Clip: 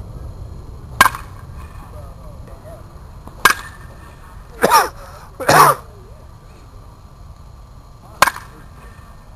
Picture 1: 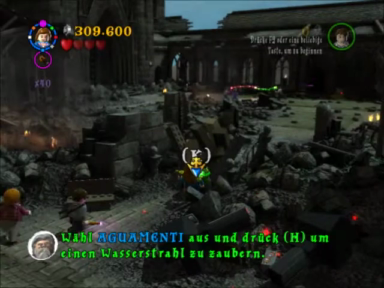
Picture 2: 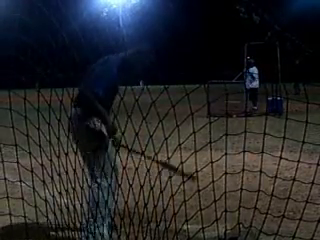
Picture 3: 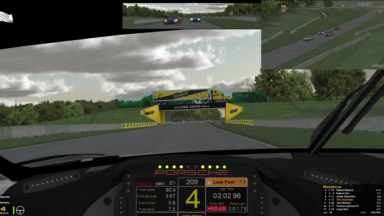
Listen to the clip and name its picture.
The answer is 2